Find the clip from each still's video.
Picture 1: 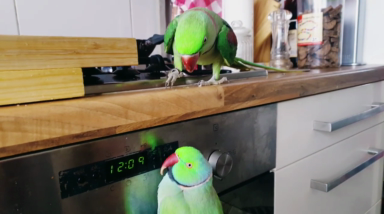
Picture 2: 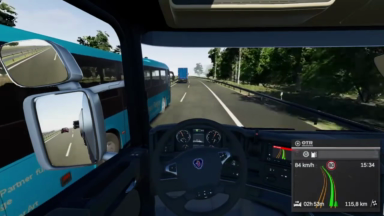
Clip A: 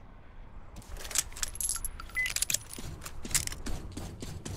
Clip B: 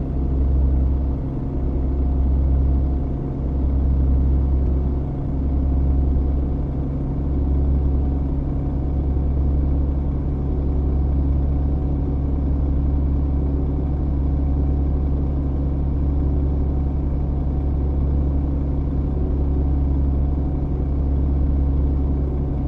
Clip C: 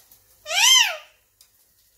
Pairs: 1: C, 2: B